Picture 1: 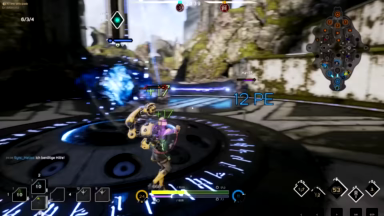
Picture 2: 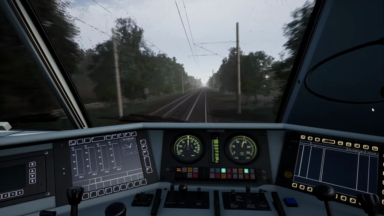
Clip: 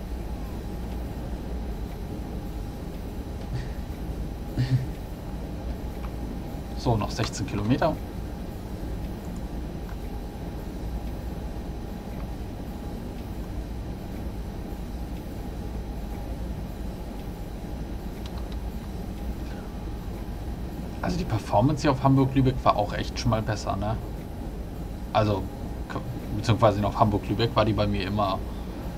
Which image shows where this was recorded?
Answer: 2